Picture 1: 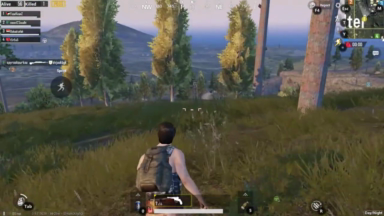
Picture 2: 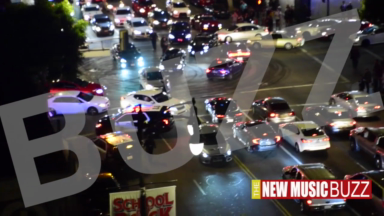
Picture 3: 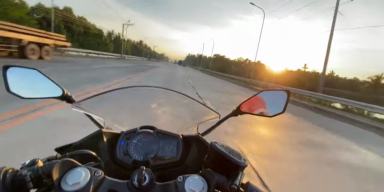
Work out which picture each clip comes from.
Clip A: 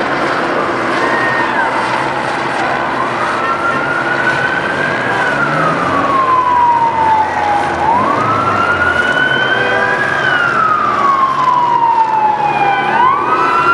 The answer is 2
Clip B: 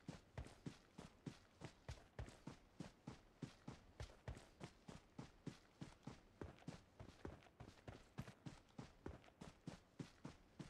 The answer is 1